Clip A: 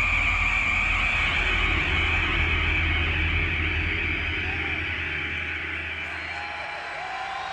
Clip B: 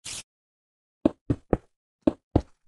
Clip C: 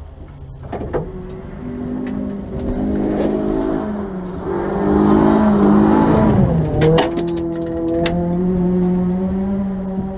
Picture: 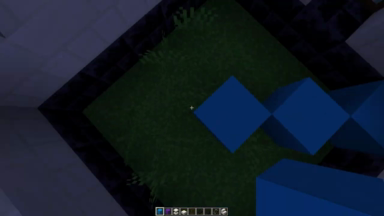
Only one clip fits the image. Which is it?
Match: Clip B